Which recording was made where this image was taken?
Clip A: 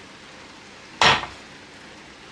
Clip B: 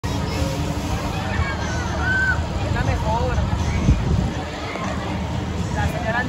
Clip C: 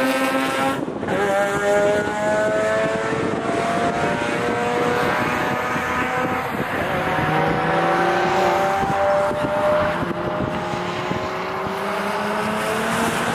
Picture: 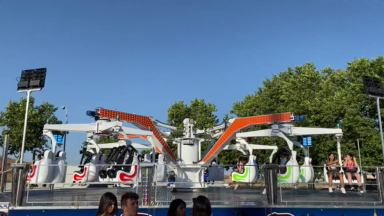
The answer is B